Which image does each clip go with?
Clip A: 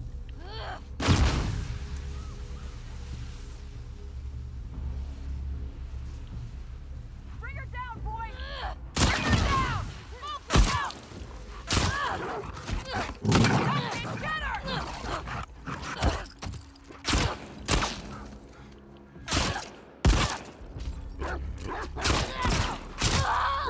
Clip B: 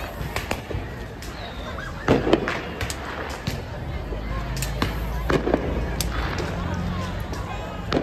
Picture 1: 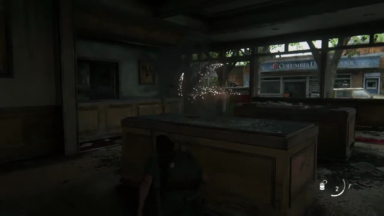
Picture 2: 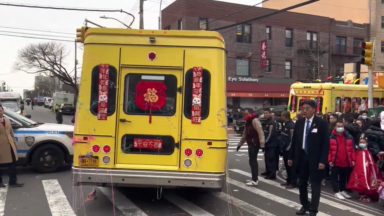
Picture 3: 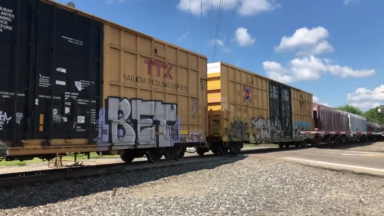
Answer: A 1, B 2